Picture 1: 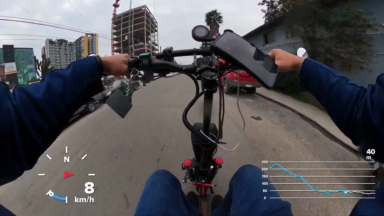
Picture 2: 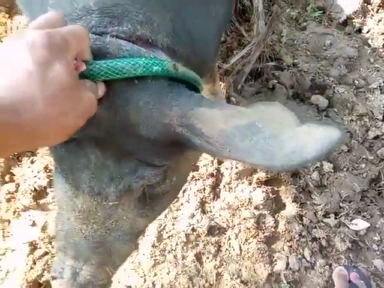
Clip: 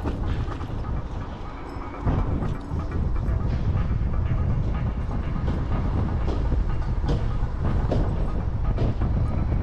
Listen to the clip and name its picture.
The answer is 1